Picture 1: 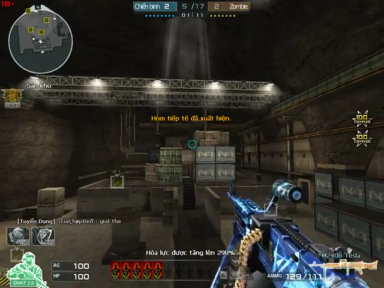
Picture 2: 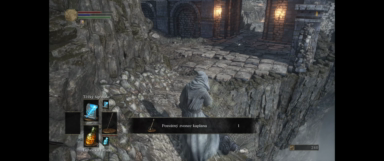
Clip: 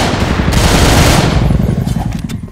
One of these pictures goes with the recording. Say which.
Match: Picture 1